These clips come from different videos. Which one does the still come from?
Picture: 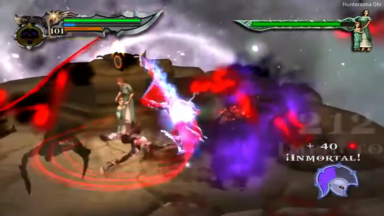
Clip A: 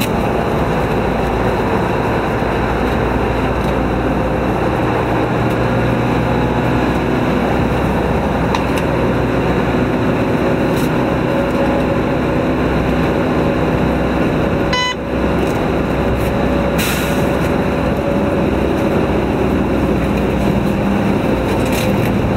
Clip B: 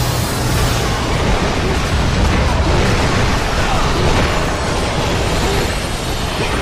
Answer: B